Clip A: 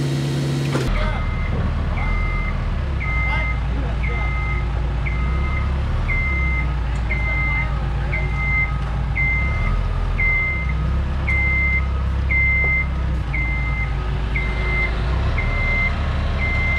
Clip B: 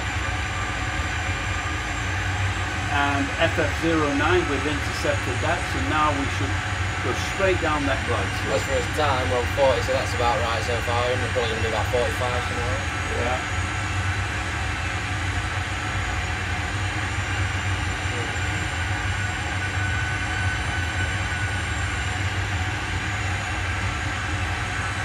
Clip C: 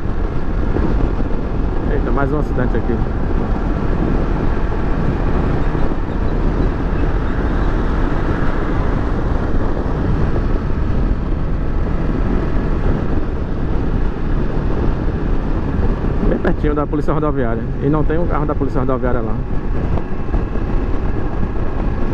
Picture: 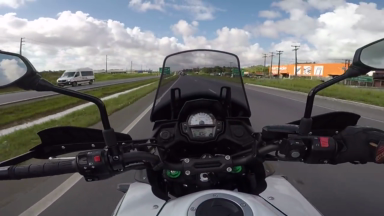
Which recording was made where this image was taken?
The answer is C